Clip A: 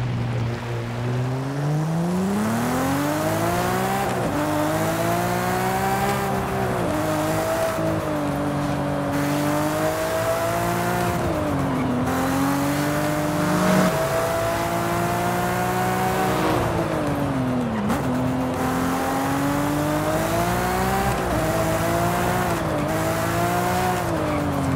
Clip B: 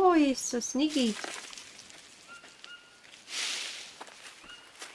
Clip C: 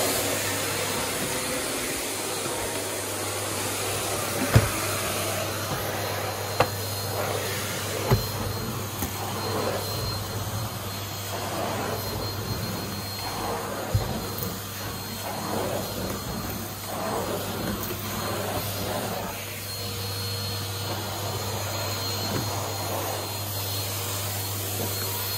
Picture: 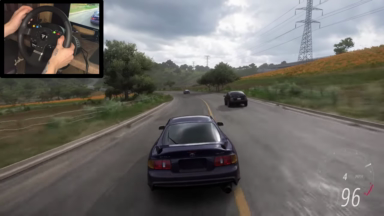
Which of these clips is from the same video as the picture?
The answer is A